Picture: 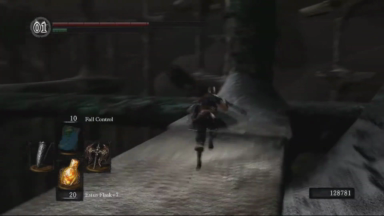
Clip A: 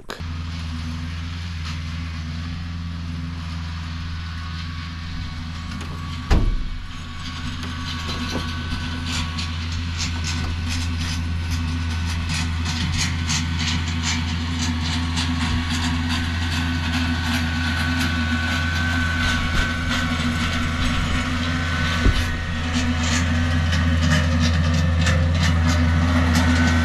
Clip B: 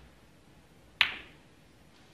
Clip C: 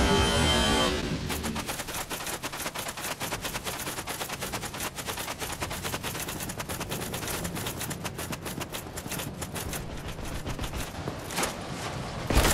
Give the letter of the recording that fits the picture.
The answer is C